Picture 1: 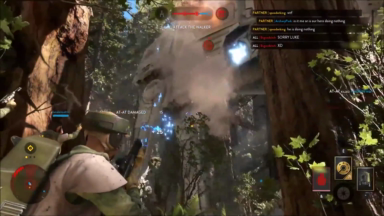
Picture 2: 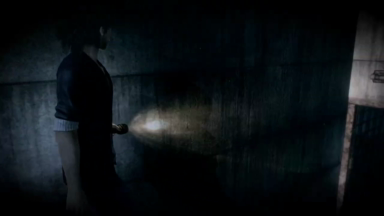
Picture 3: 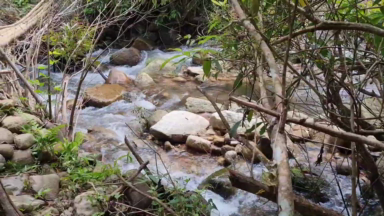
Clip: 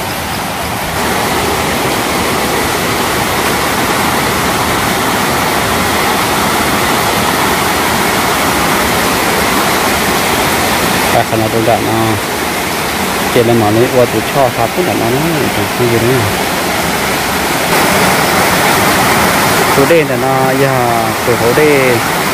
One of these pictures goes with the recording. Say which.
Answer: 3